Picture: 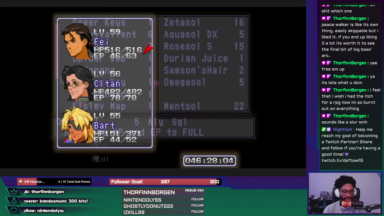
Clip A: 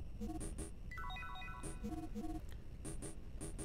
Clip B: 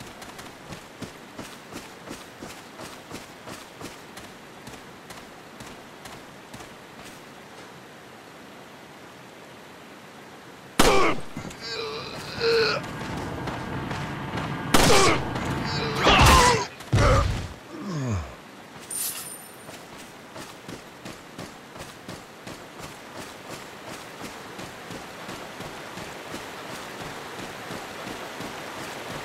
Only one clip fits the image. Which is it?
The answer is A